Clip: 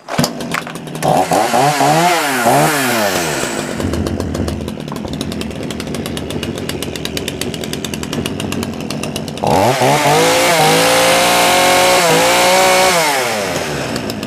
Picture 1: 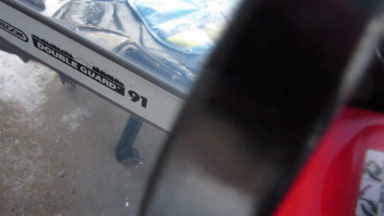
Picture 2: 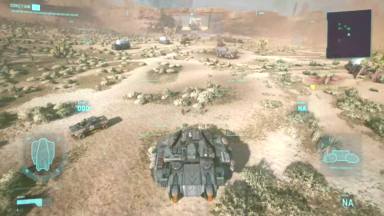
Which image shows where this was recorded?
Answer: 1